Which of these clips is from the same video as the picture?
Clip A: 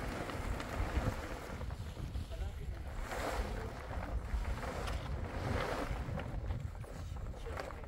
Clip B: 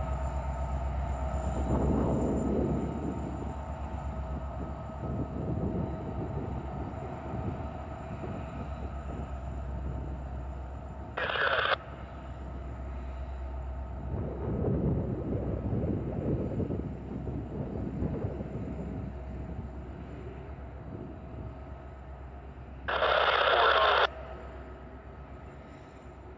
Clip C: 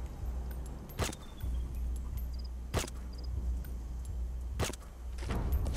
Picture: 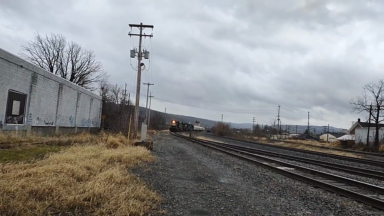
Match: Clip B